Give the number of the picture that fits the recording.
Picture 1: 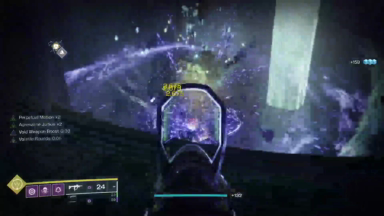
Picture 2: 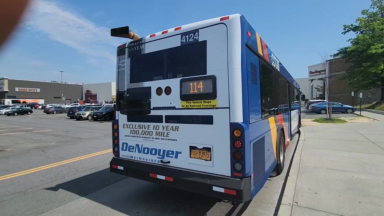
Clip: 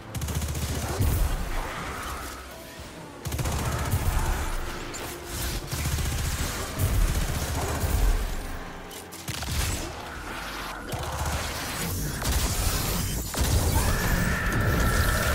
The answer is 1